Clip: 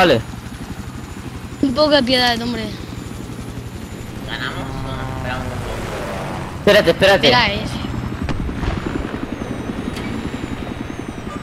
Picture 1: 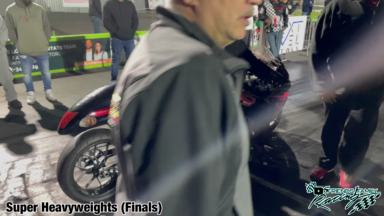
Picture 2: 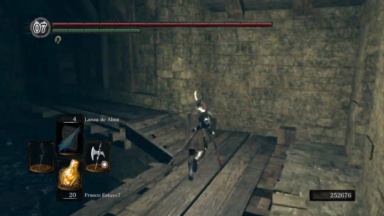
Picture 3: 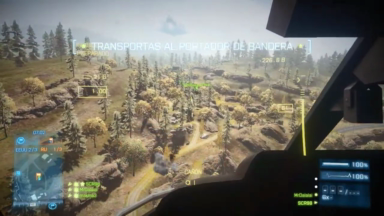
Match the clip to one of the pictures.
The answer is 3